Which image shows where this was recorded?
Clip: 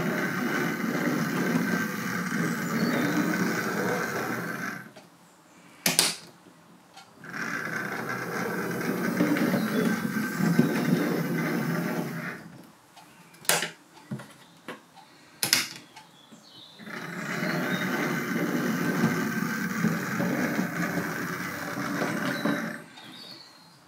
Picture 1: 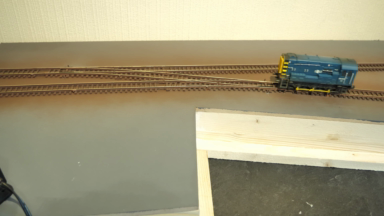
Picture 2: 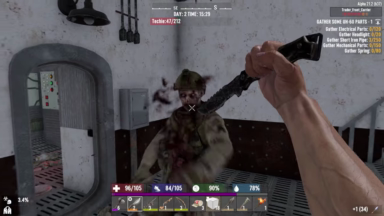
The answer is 1